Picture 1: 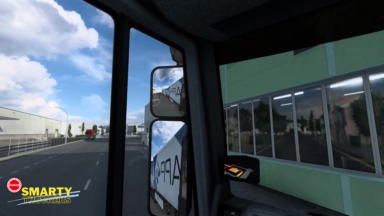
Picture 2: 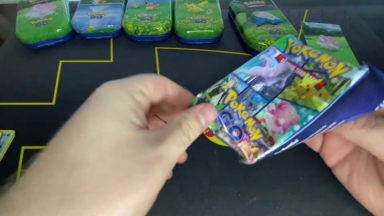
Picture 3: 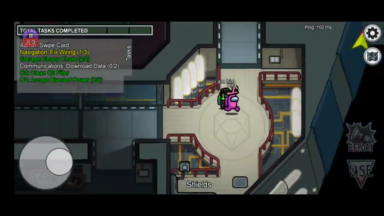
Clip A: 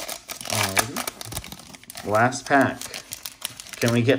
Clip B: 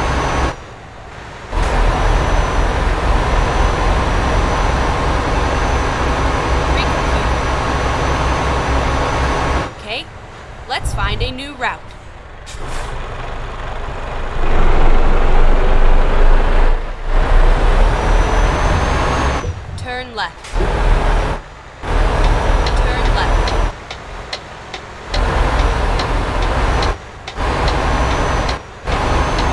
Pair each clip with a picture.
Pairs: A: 2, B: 1